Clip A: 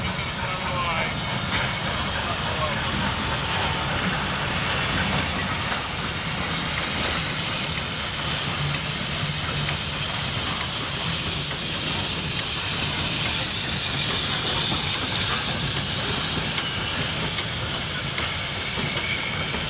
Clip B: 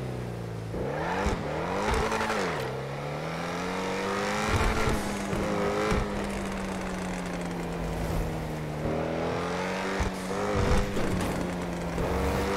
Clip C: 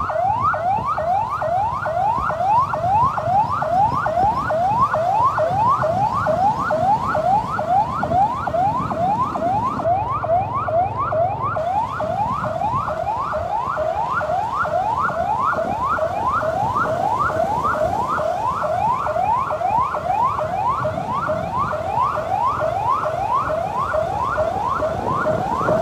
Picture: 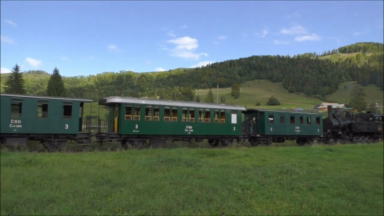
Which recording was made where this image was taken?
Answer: A